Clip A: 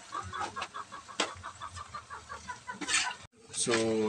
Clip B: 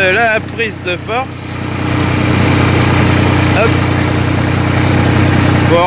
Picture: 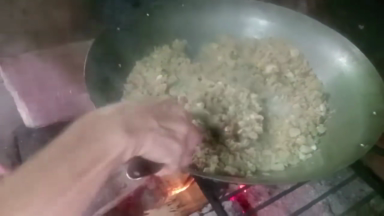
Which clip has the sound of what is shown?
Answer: A